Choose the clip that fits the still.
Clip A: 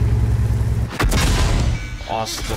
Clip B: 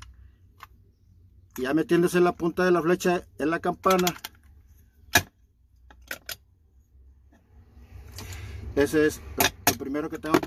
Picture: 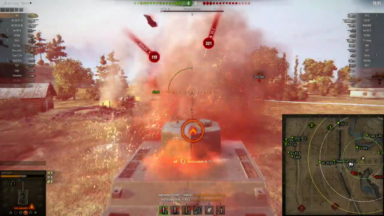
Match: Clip A